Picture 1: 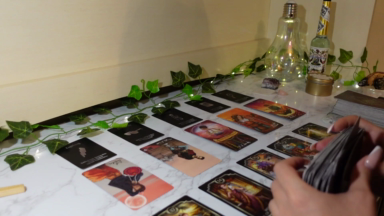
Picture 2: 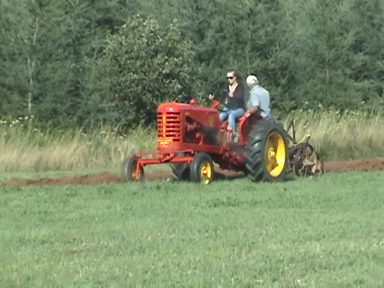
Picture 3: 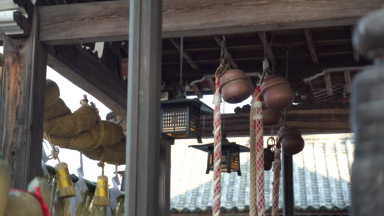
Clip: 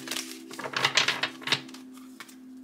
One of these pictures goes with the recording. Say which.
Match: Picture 1